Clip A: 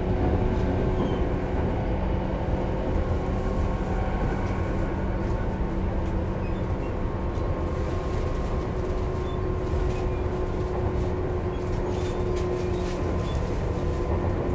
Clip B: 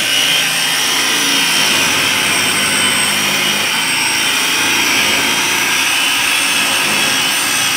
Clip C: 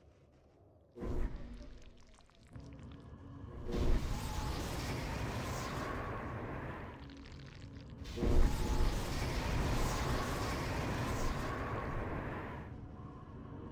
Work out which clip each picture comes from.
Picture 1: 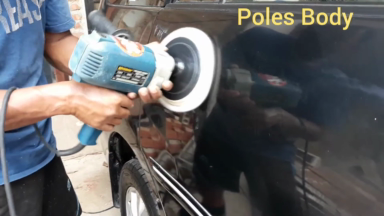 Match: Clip B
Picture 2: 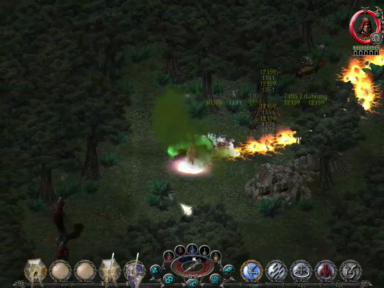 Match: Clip C